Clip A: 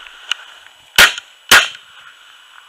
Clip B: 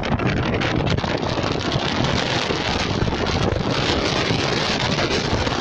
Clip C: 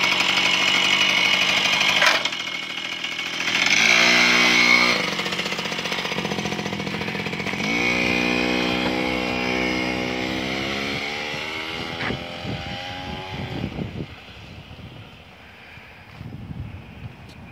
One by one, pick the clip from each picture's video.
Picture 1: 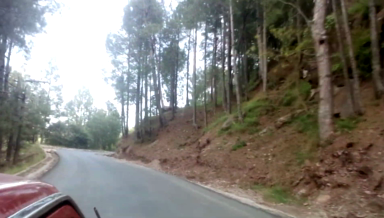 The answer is B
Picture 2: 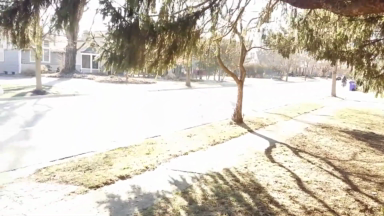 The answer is C